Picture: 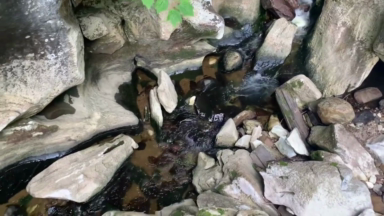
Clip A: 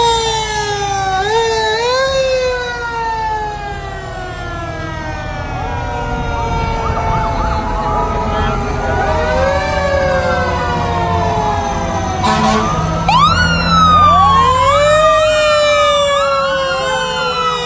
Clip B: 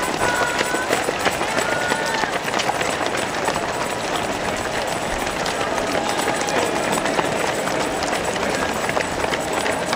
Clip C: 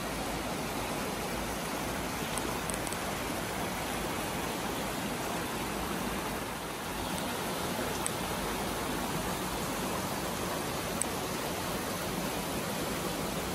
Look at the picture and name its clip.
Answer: C